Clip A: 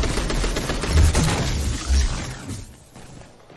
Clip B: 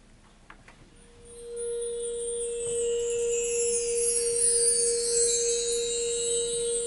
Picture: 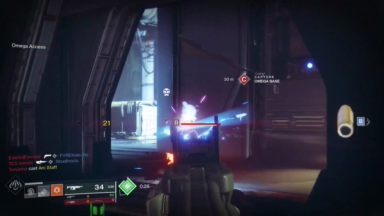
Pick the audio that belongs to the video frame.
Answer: A